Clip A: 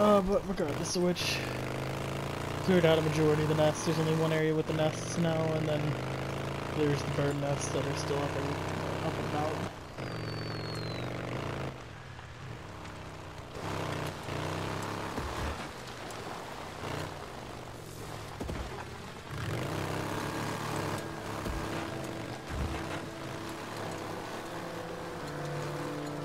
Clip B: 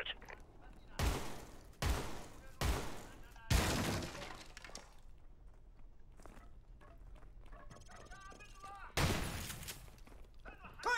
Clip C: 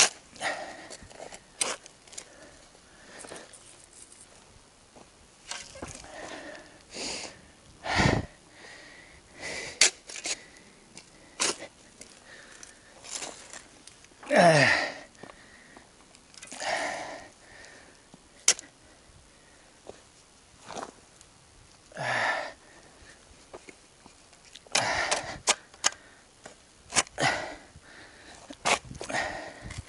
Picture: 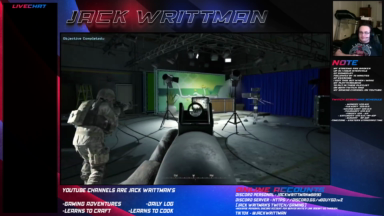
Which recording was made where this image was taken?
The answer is B